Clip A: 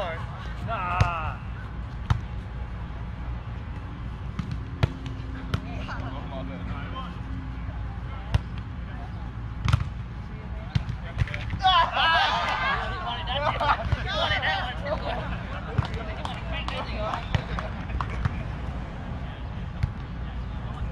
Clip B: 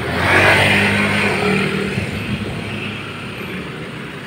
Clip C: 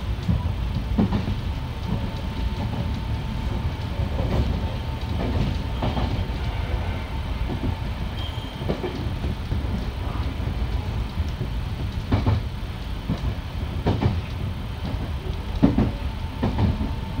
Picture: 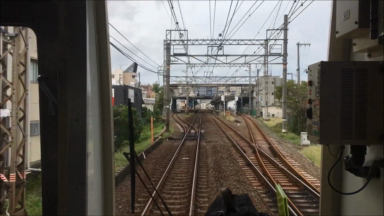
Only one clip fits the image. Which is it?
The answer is C